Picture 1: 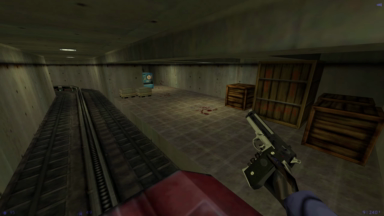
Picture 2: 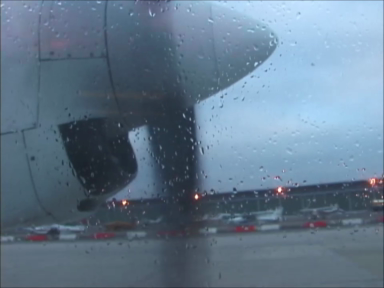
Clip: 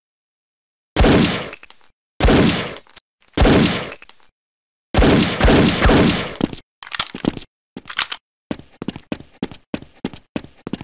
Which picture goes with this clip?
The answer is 1